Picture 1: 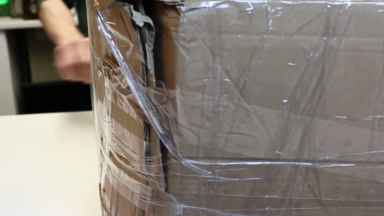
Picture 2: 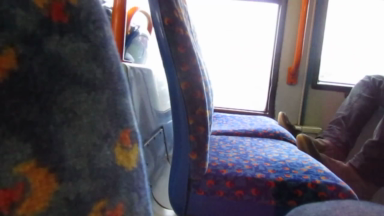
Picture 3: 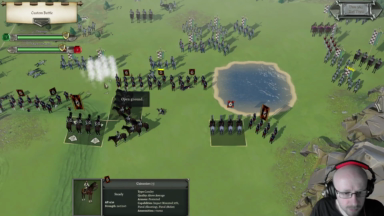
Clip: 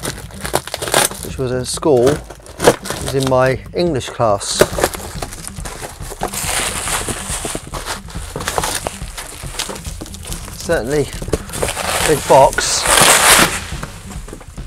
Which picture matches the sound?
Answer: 1